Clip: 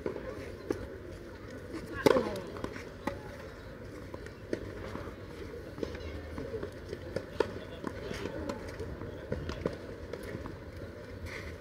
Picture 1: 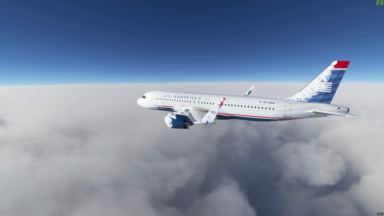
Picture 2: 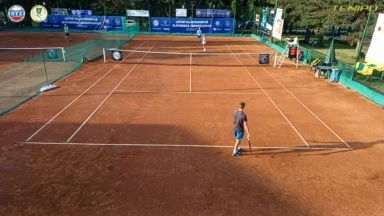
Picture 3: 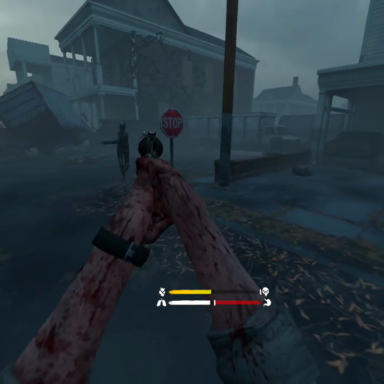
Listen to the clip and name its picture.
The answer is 2